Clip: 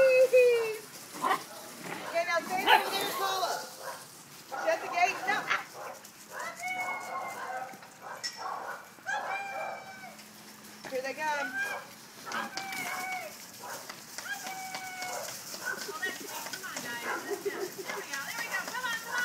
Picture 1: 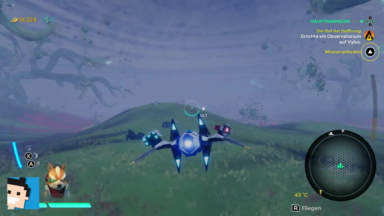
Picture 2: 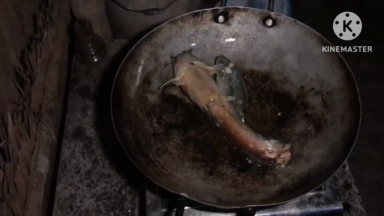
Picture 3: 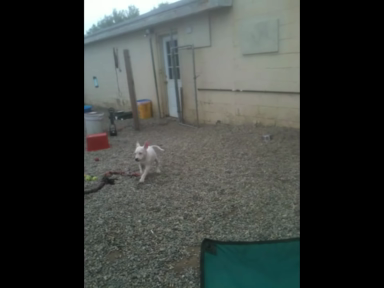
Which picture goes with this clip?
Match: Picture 3